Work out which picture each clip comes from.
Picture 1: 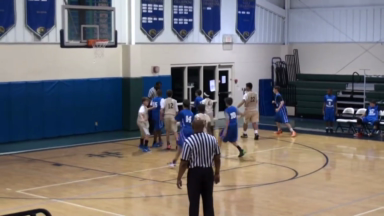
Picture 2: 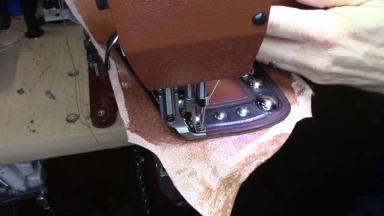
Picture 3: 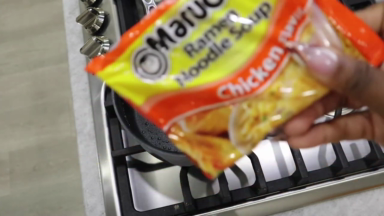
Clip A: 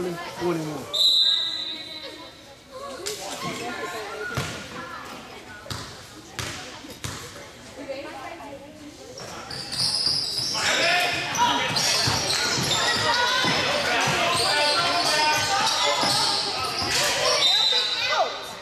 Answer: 1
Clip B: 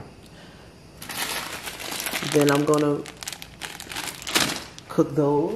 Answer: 3